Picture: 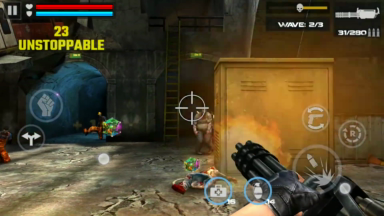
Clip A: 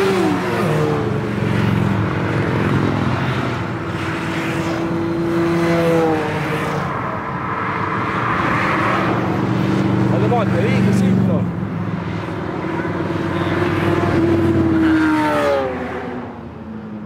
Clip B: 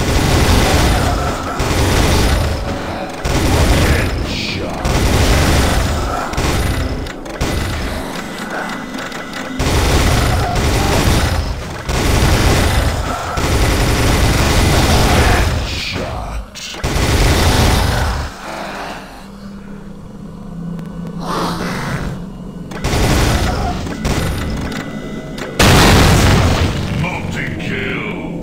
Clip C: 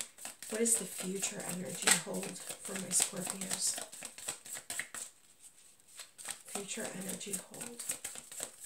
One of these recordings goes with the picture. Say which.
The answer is B